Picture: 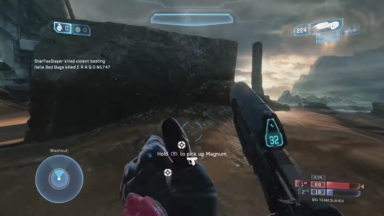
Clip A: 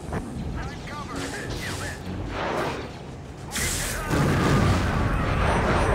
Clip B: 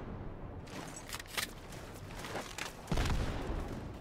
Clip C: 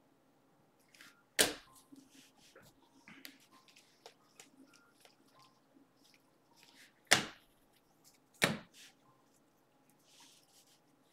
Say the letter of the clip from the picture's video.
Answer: B